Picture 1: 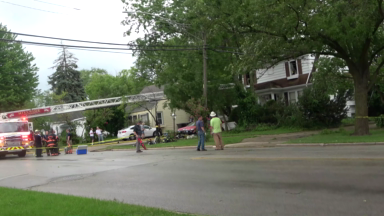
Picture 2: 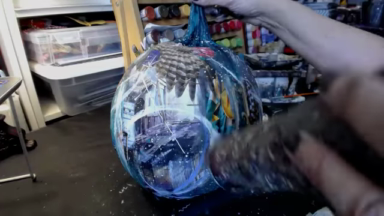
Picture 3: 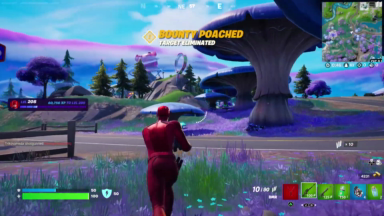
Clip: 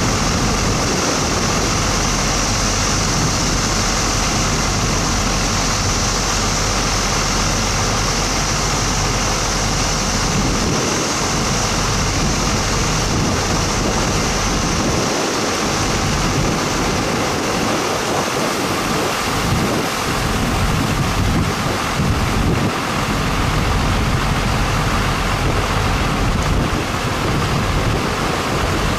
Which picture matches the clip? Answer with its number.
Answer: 1